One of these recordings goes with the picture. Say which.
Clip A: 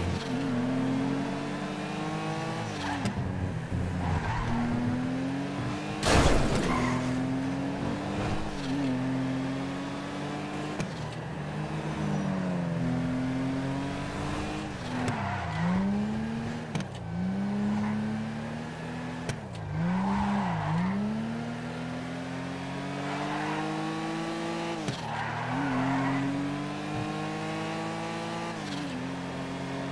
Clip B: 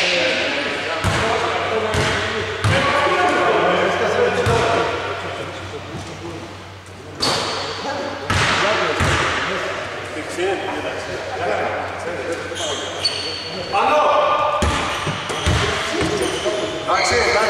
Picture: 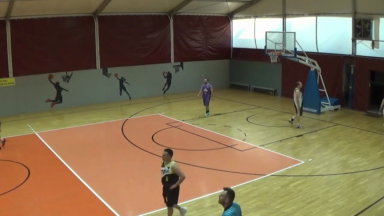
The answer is B